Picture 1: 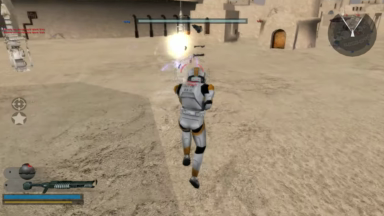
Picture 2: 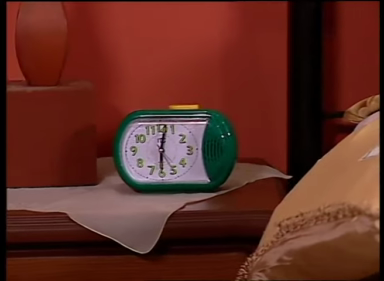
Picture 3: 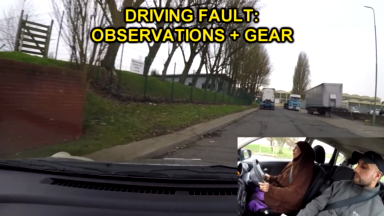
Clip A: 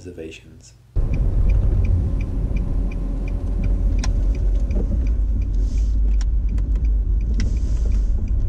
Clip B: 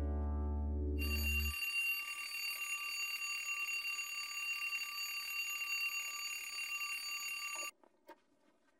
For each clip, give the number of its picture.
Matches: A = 3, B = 2